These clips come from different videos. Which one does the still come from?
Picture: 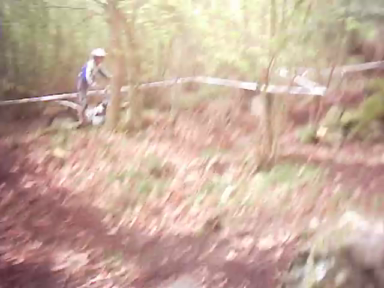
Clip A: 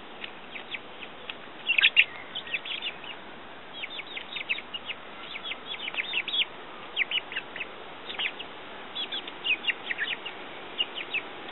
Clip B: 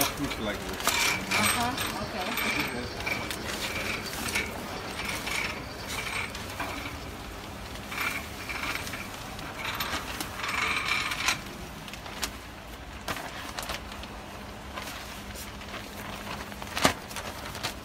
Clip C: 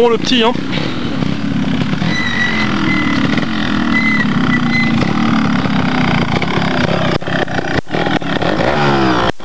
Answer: C